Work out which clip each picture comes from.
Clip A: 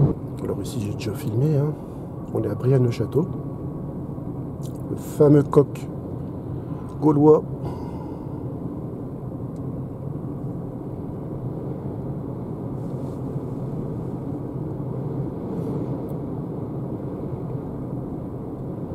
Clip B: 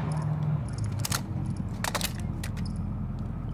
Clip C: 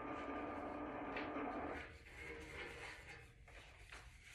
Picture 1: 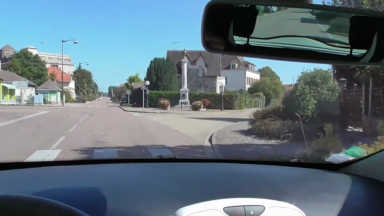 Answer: A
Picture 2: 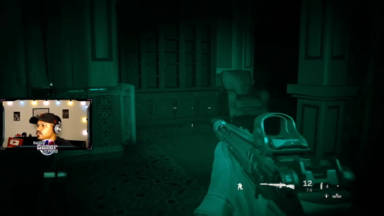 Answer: B